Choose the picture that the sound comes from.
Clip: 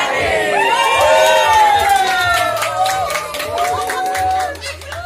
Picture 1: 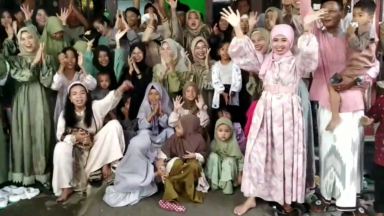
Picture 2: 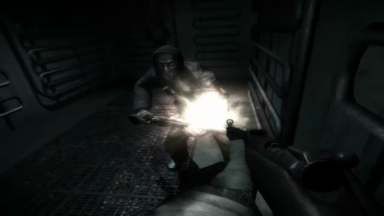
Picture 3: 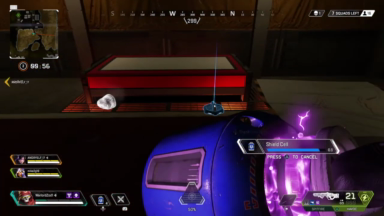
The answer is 1